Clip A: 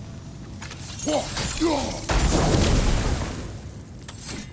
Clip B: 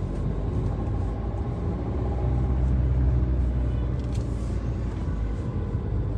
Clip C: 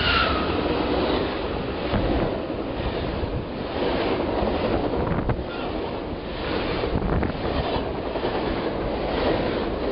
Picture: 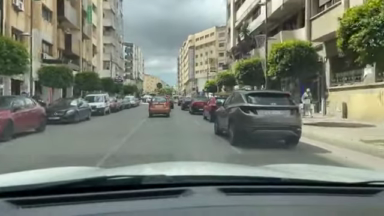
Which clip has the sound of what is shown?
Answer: B